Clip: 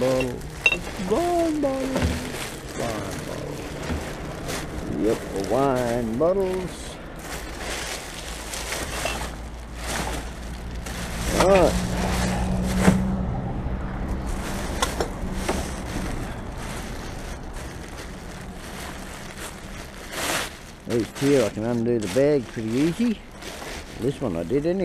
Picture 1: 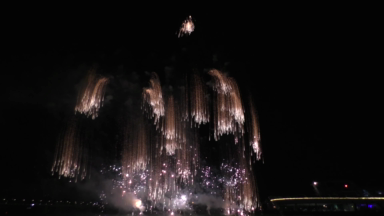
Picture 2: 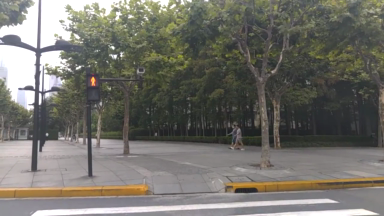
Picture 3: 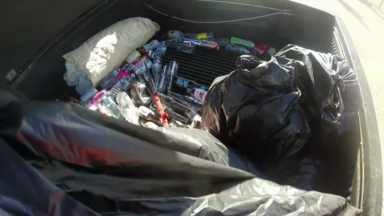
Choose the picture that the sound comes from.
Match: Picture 3